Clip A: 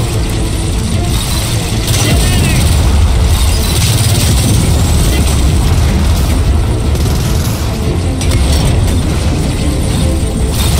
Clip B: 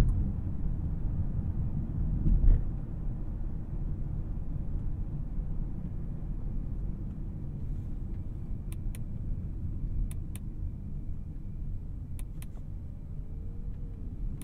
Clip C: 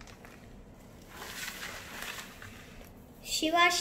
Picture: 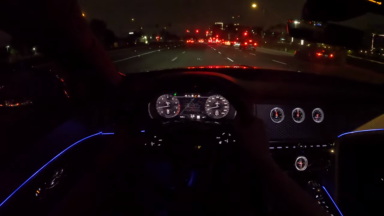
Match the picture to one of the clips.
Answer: B